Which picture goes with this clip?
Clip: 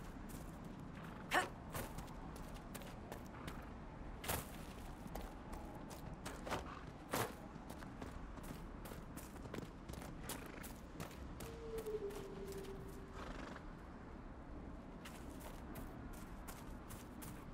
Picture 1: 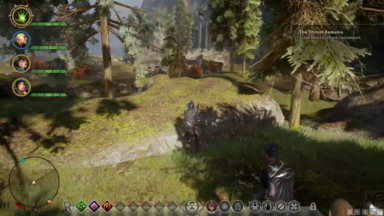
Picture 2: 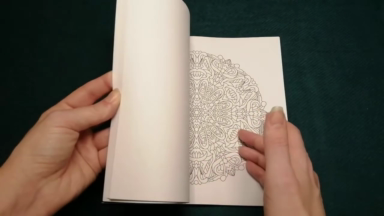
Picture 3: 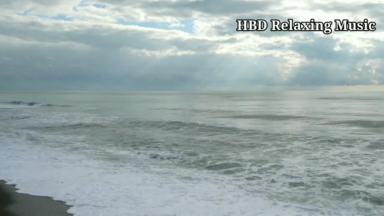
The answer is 1